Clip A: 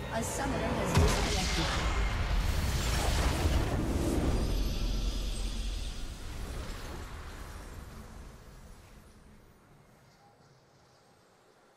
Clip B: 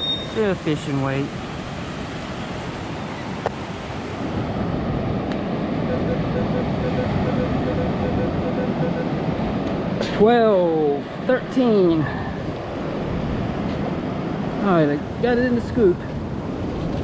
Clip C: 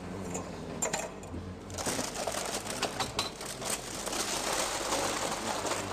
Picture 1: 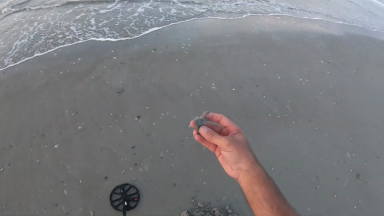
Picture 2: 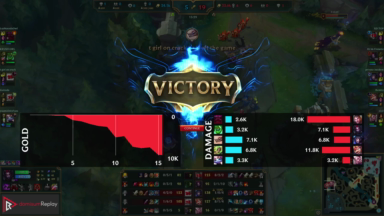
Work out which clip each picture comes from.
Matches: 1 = B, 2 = A